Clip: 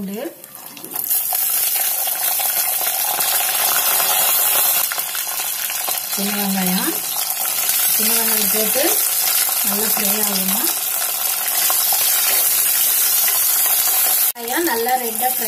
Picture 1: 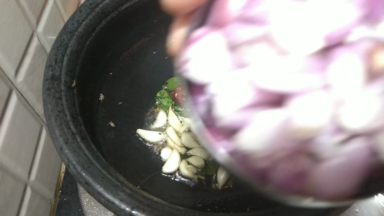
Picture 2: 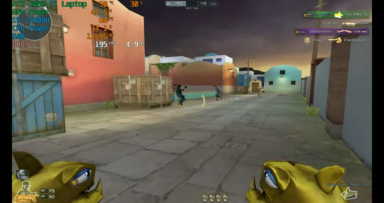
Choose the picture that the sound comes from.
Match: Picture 1